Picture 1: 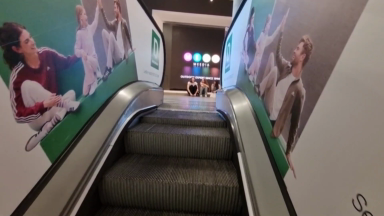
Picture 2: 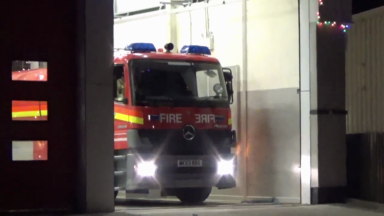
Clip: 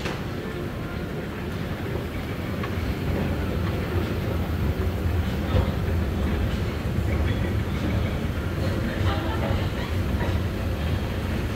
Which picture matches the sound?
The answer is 1